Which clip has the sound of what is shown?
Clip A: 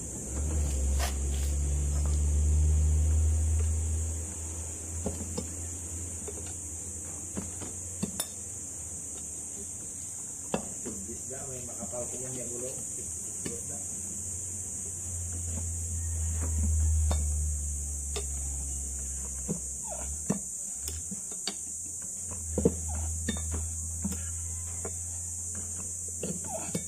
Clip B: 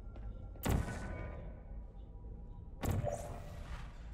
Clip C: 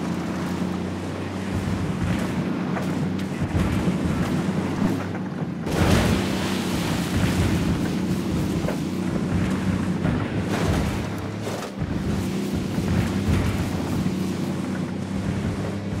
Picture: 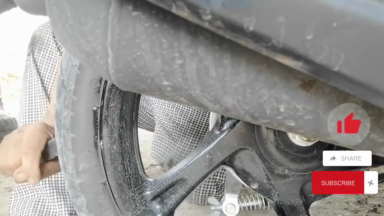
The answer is A